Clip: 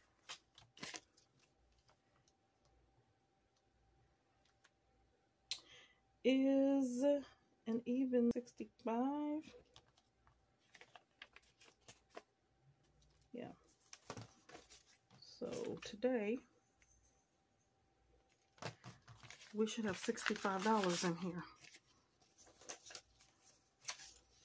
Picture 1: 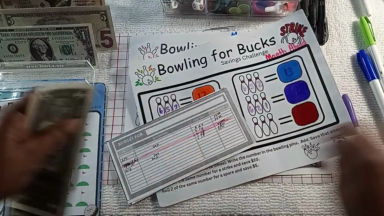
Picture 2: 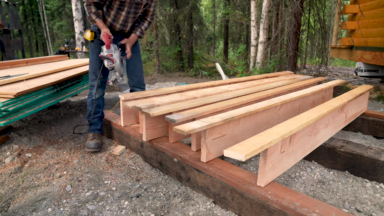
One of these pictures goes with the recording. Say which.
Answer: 1